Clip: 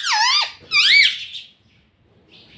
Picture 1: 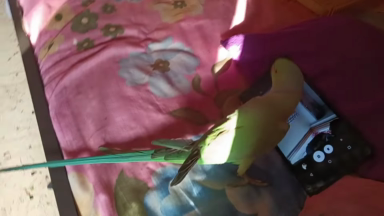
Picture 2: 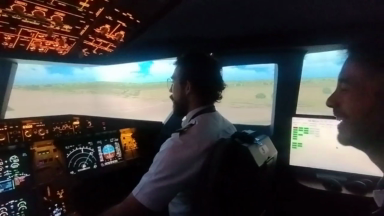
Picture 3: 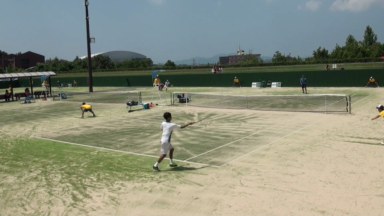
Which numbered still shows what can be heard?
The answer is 1